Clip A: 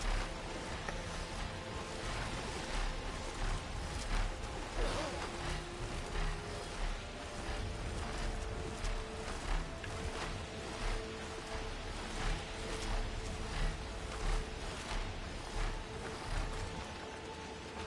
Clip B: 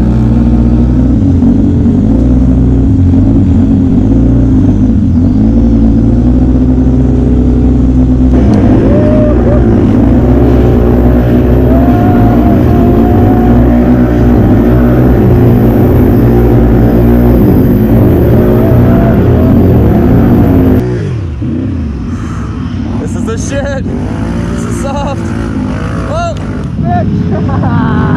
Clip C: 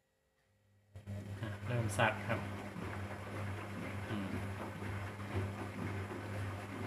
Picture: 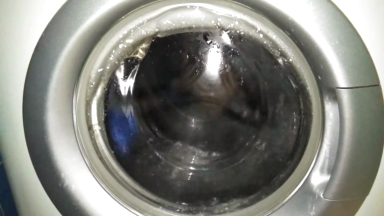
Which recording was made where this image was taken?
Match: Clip C